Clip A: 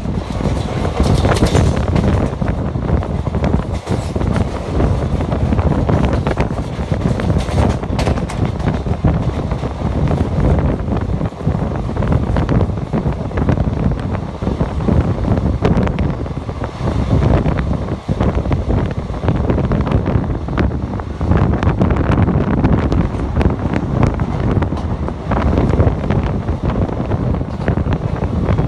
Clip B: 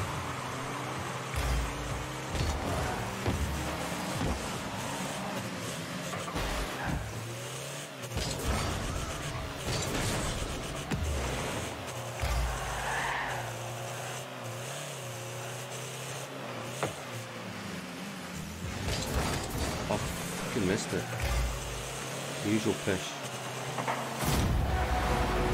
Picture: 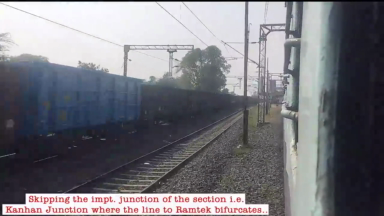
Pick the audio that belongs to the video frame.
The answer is A